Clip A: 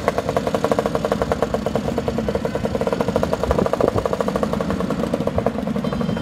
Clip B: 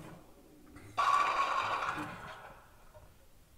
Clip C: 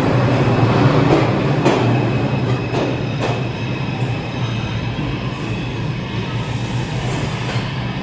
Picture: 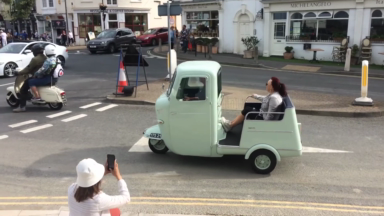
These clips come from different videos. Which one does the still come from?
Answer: A